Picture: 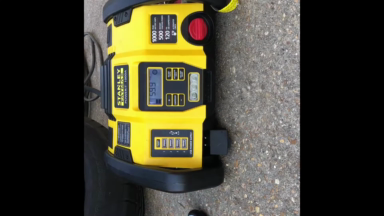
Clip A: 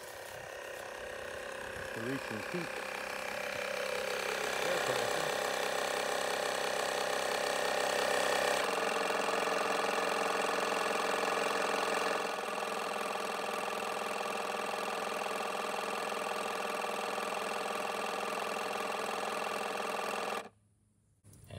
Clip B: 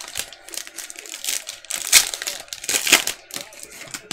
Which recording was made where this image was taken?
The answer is A